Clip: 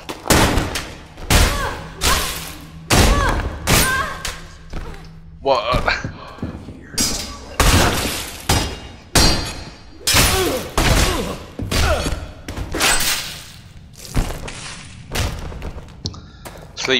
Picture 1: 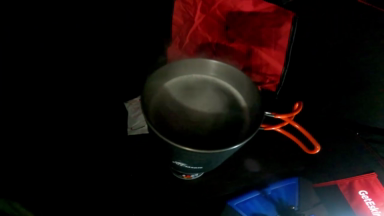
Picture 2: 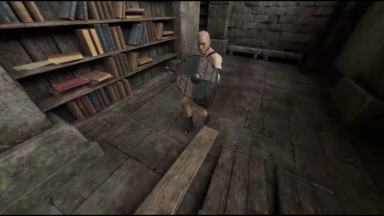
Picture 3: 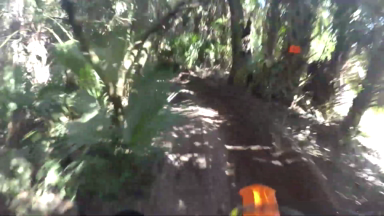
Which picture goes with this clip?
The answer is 2